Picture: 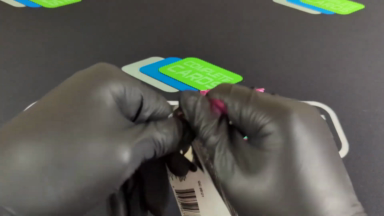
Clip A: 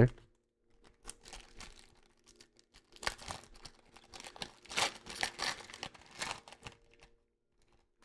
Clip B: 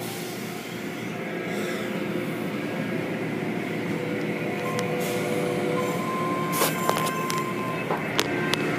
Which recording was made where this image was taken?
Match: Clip A